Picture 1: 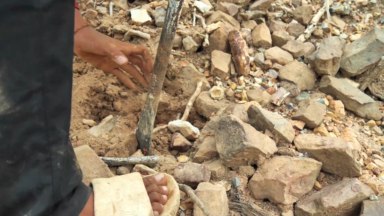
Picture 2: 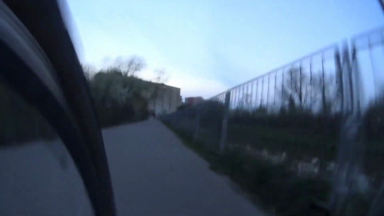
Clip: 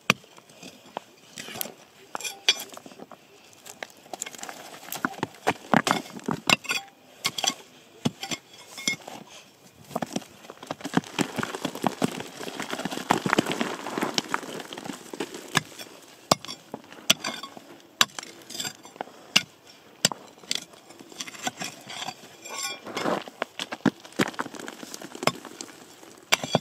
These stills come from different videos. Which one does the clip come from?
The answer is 1